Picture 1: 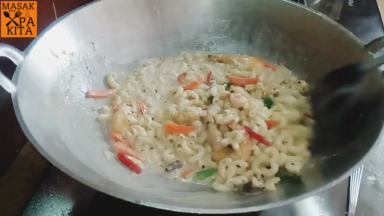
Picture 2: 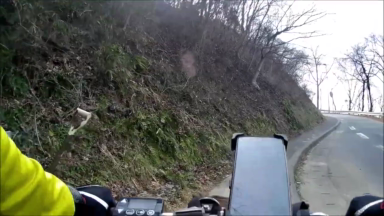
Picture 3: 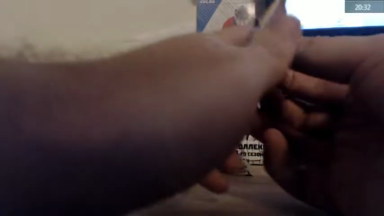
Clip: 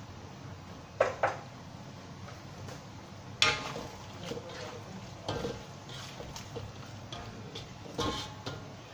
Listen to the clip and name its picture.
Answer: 1